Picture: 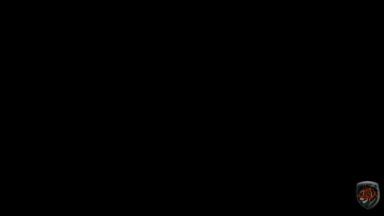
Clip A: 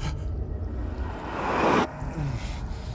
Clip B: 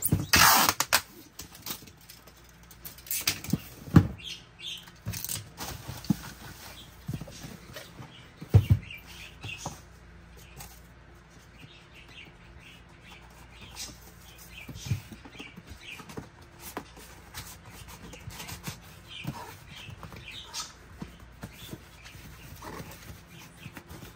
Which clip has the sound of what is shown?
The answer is A